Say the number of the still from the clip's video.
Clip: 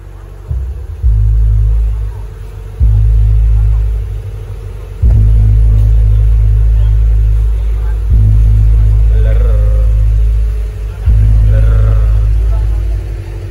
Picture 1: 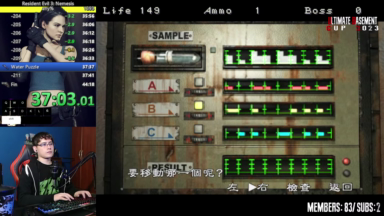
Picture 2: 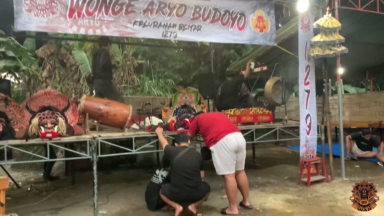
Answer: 2